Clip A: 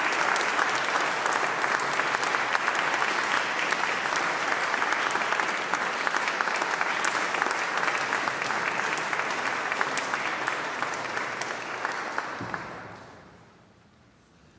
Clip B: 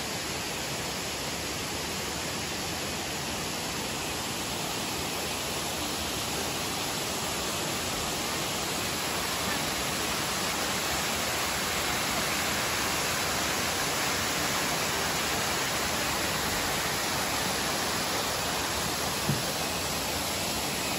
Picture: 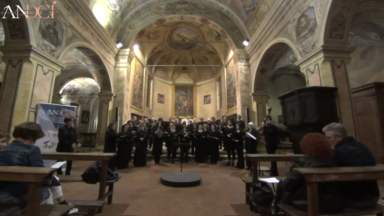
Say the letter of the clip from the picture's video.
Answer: A